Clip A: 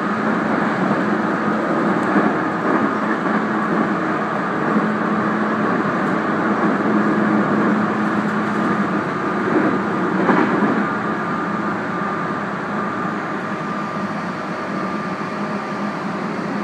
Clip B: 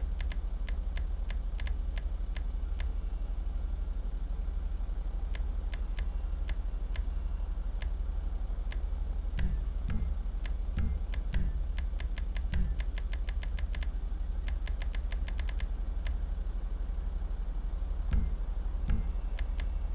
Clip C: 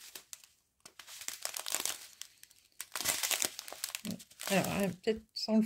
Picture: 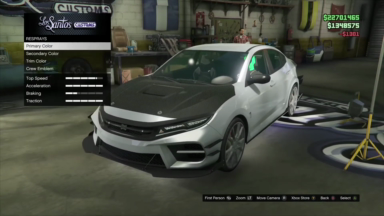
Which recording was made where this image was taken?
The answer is B